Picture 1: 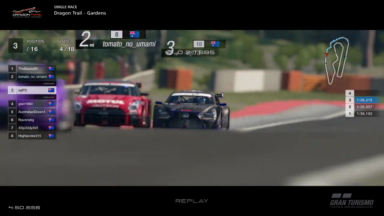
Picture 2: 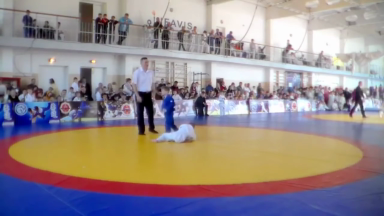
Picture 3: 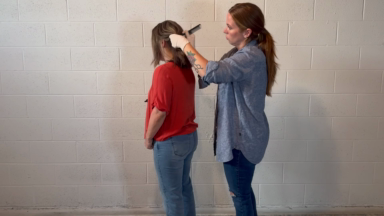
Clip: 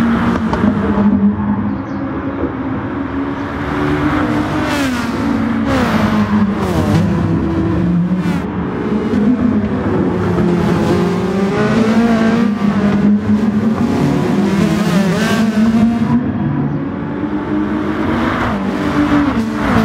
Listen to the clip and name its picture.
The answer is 1